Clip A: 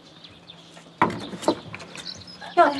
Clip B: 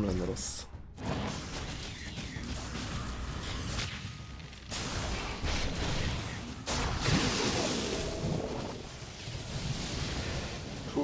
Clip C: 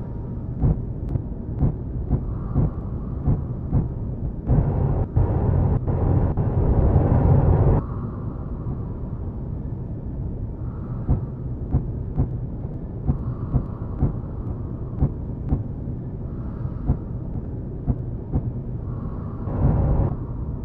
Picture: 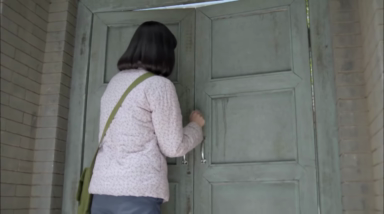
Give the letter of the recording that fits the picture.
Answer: A